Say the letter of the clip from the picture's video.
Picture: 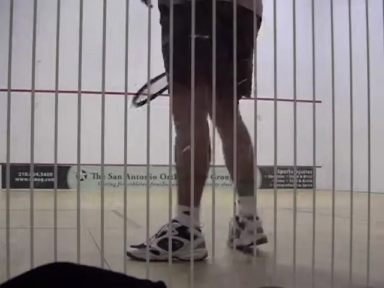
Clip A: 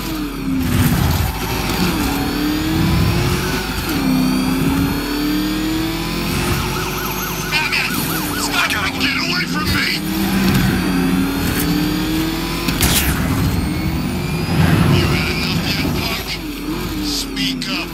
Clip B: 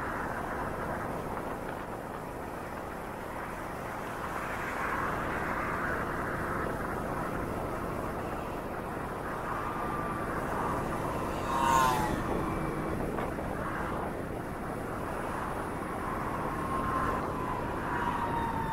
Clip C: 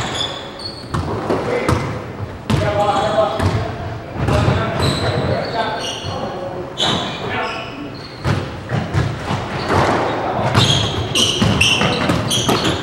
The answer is C